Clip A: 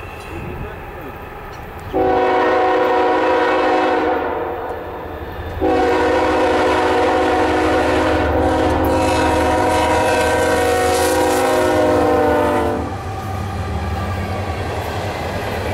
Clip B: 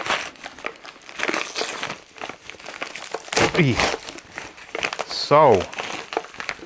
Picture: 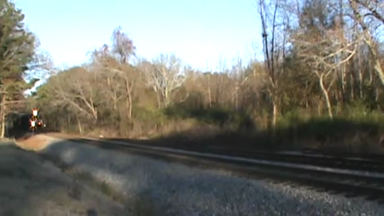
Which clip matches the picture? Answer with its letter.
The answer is A